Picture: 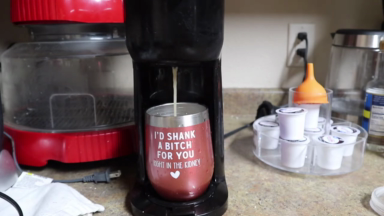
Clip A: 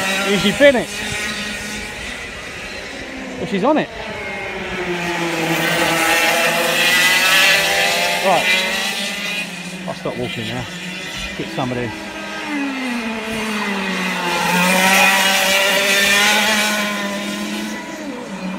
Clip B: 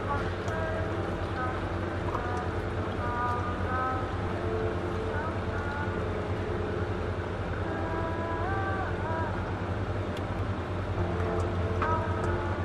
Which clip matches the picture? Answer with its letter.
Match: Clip B